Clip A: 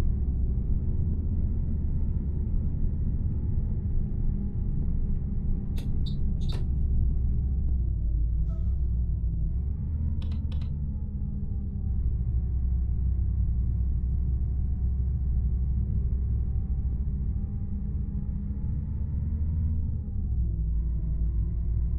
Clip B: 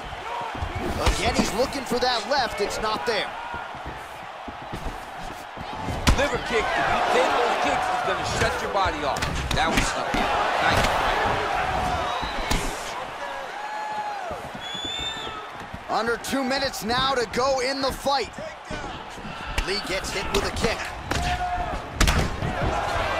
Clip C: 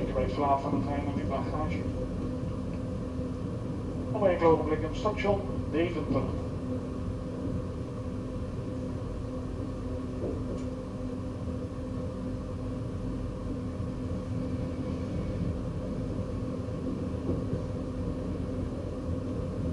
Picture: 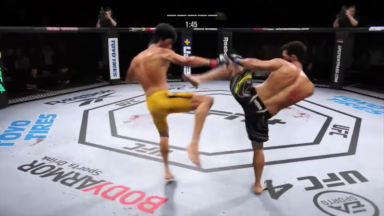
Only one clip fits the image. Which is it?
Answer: B